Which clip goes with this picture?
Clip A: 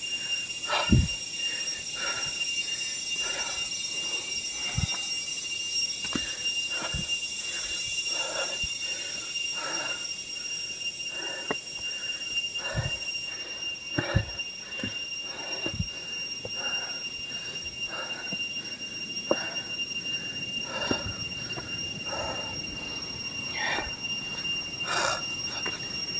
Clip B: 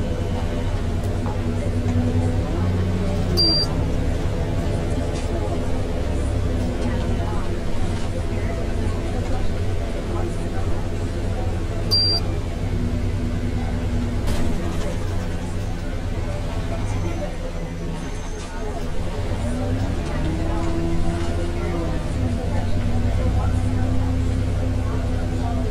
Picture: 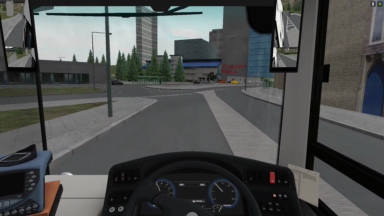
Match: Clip B